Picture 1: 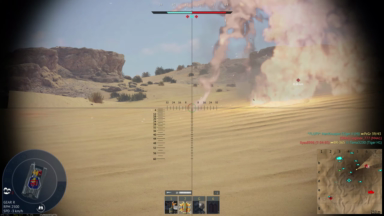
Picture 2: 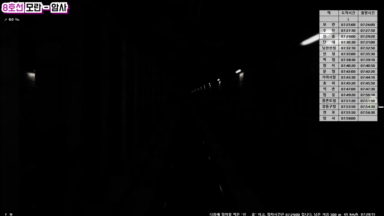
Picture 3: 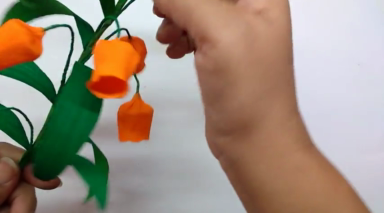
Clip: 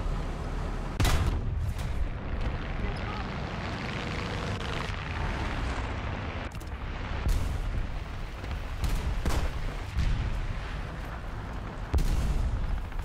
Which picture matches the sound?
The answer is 1